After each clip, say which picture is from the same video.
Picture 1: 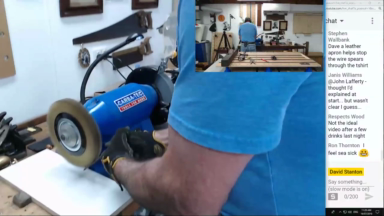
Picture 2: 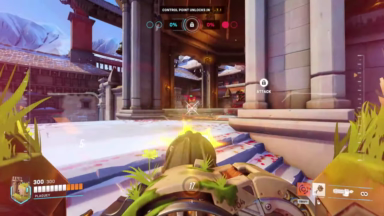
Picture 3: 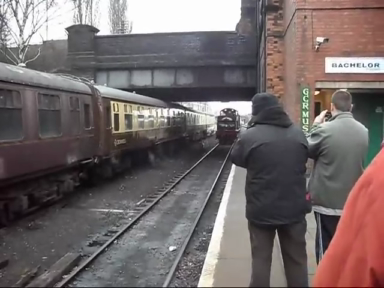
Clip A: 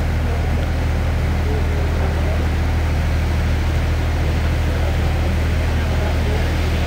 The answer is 3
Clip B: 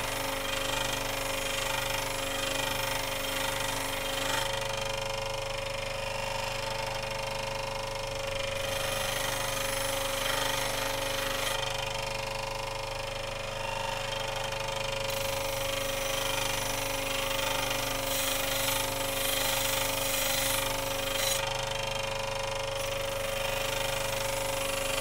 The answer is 1